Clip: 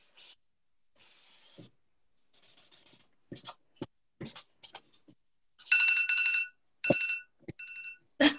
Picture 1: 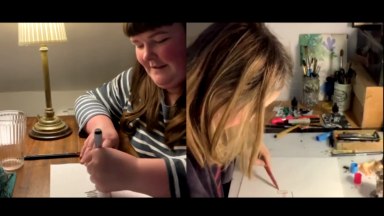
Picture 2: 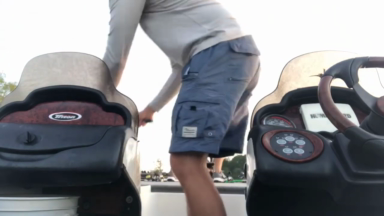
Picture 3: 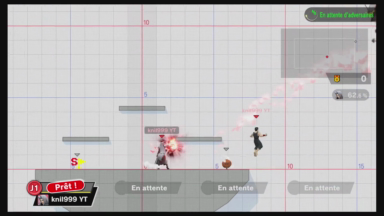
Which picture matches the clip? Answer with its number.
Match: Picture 1